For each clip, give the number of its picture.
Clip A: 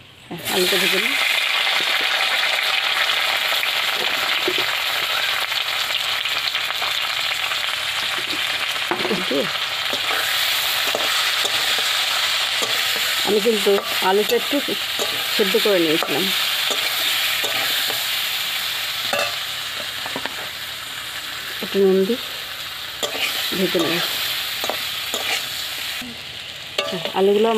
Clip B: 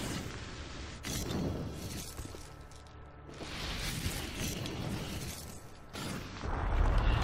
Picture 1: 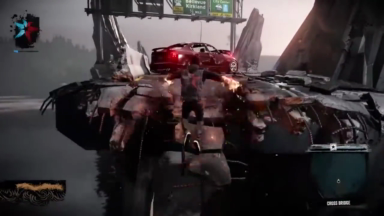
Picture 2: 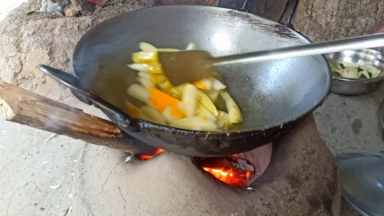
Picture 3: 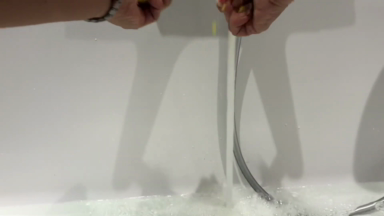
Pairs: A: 2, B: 1